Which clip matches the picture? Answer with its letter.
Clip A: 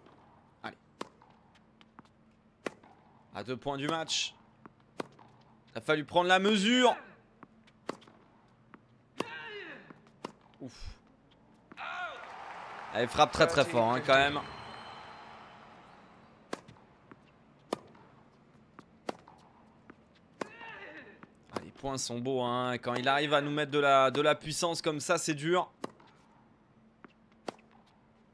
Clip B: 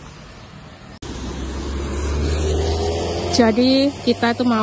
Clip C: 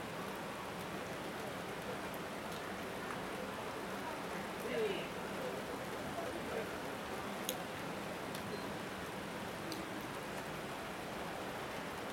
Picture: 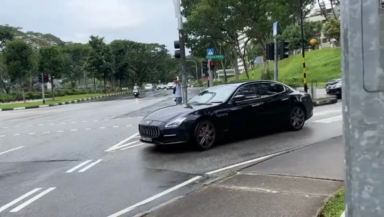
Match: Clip B